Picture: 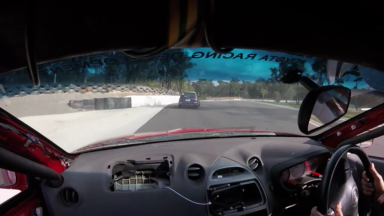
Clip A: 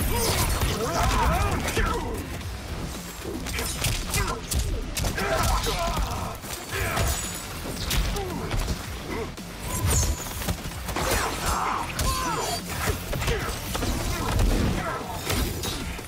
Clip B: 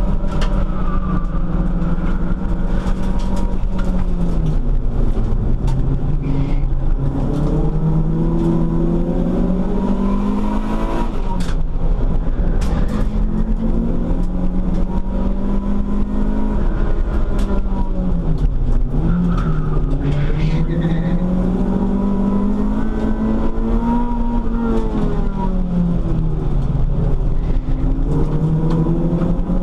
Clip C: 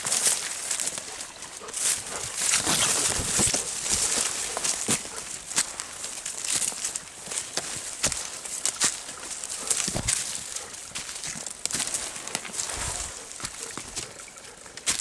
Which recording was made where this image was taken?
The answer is B